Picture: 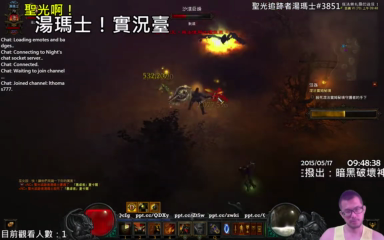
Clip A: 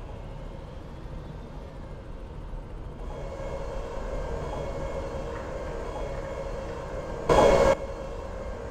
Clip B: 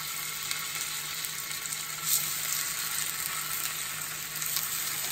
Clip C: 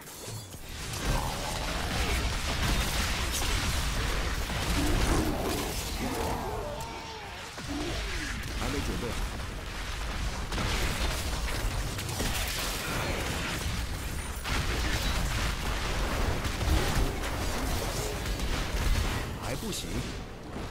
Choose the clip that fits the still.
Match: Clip C